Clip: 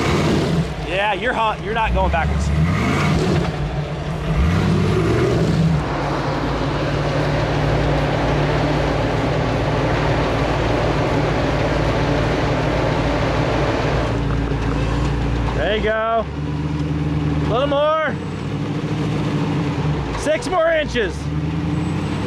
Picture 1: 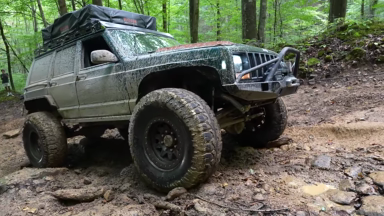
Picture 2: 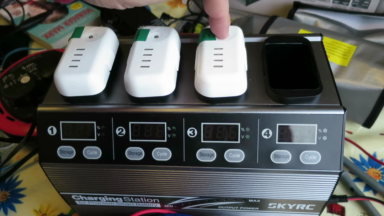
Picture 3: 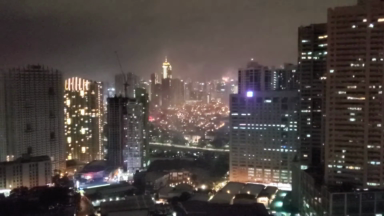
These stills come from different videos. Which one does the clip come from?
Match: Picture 1